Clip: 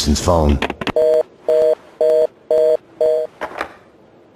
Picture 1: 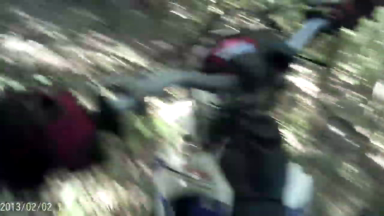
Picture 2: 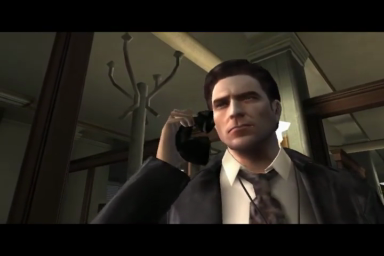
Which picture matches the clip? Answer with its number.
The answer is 2